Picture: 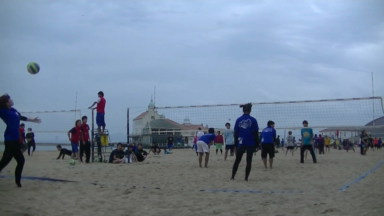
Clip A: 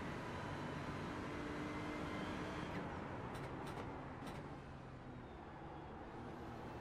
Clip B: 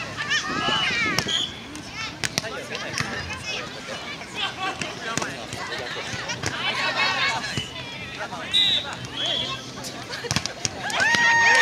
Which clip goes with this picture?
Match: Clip B